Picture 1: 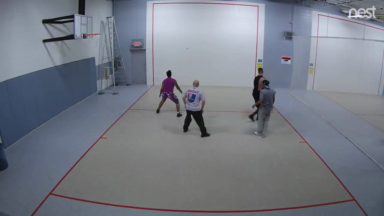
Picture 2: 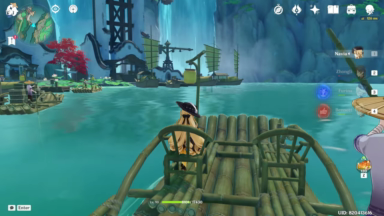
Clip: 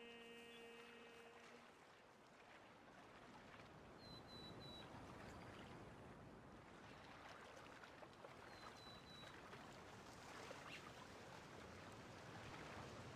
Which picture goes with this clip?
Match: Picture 2